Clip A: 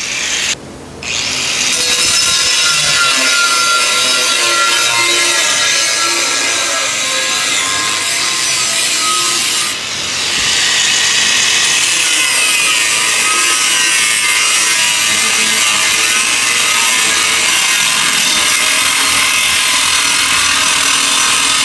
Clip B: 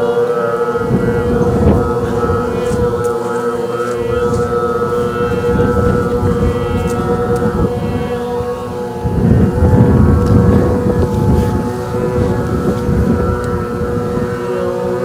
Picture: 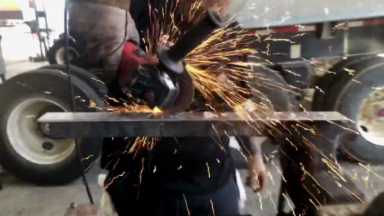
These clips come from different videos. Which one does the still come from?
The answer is A